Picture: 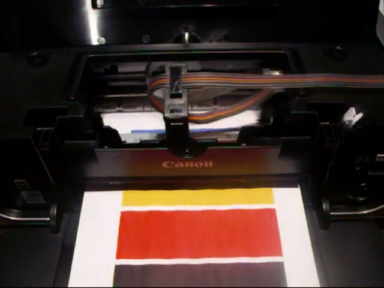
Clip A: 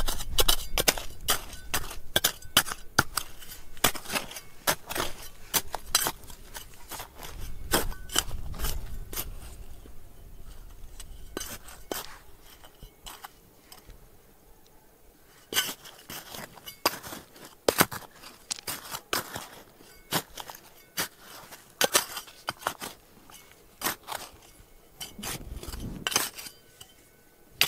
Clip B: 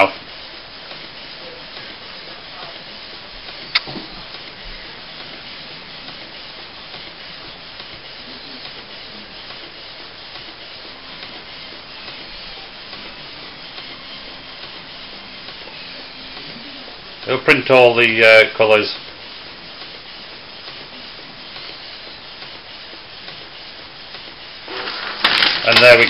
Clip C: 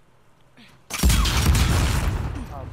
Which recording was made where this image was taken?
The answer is B